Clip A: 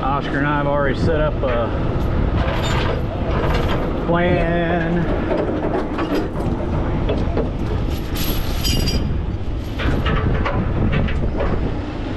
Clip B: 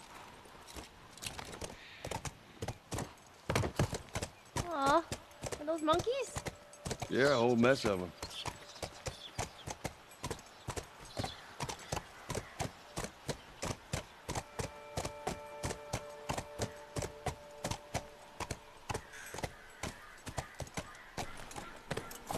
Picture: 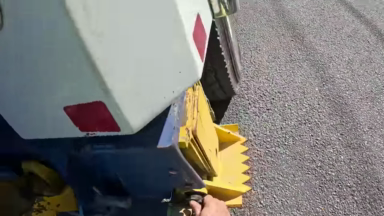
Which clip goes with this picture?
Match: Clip A